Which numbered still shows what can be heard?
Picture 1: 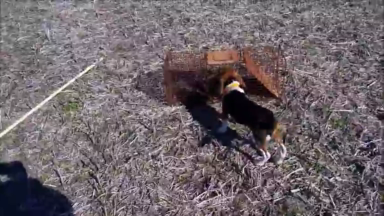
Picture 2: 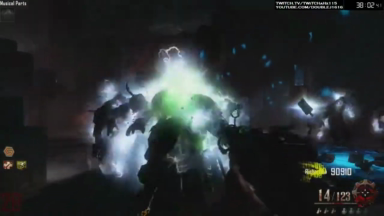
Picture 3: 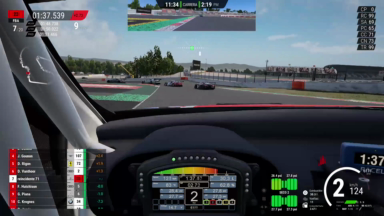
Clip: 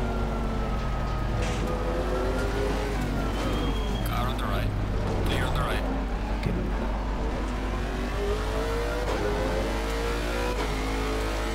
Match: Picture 3